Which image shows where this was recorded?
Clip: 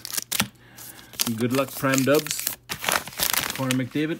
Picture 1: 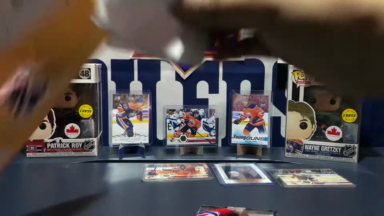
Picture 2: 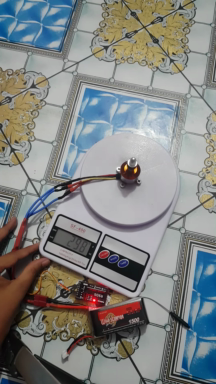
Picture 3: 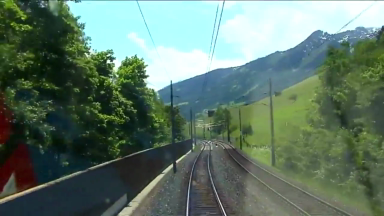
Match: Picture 1